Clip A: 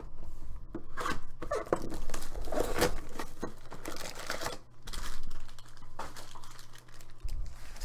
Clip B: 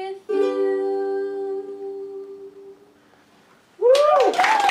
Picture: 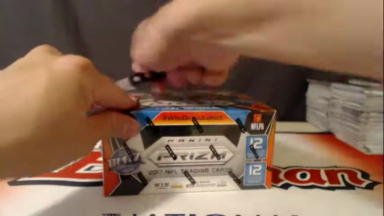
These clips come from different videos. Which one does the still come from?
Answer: A